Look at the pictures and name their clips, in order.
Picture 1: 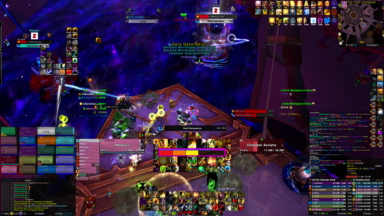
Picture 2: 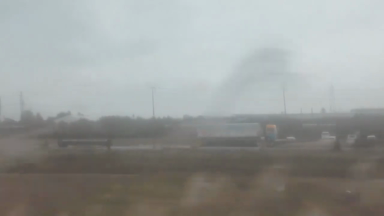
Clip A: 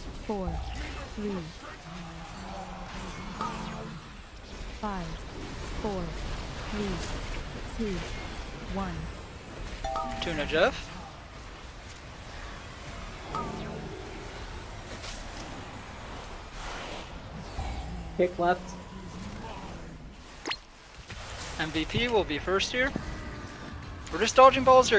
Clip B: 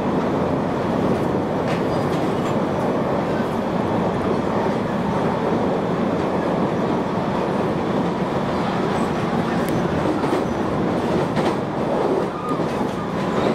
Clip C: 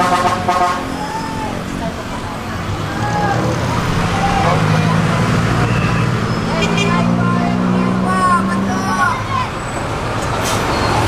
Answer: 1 A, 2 B